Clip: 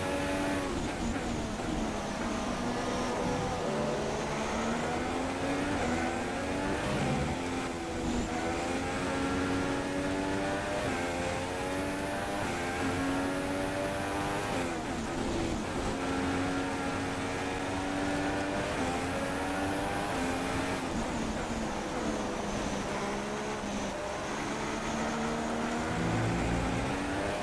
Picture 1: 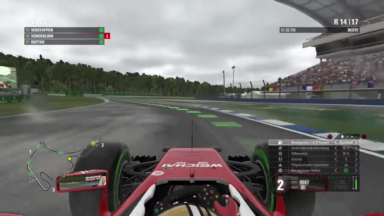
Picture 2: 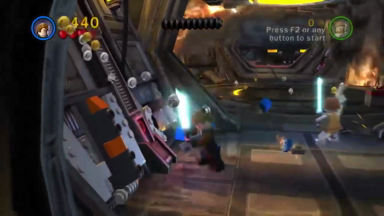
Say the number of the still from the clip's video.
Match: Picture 1